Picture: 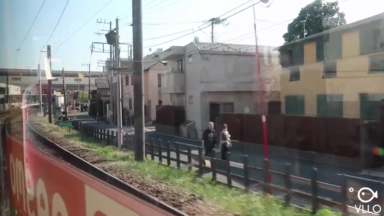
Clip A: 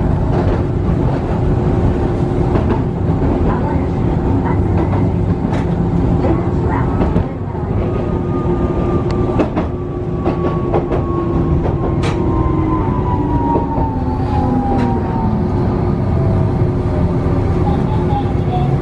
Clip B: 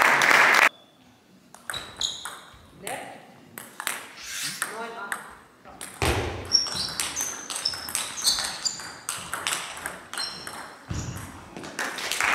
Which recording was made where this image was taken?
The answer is A